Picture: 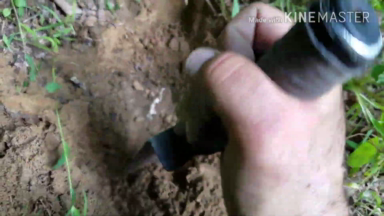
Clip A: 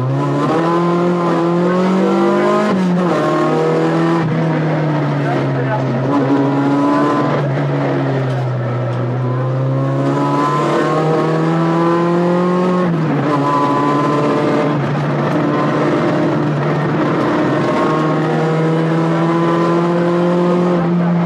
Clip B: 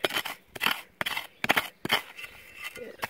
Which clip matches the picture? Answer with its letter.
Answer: B